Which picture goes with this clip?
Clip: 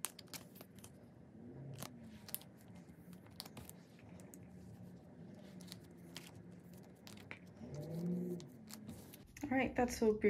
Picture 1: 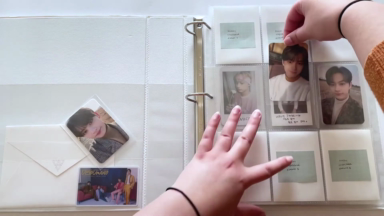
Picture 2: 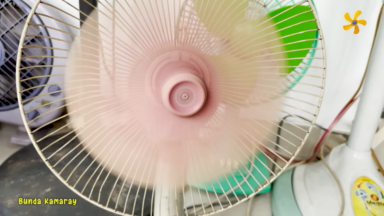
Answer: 1